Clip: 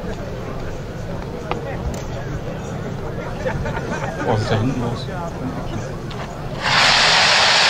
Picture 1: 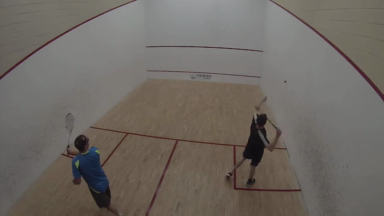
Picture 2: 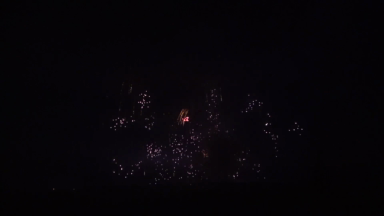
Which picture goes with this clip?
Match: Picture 2